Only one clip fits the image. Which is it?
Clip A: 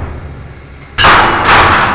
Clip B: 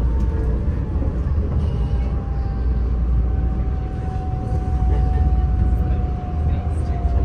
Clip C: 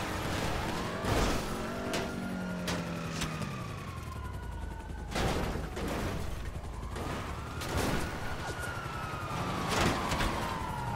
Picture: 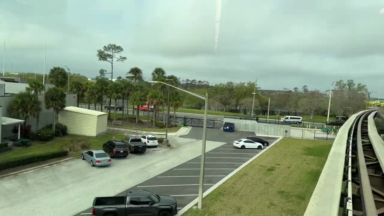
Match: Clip B